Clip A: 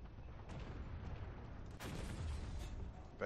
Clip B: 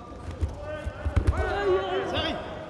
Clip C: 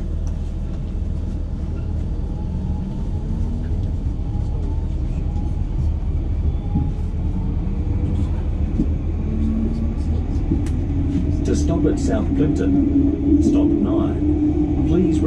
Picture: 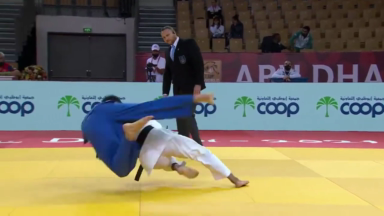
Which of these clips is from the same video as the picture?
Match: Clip B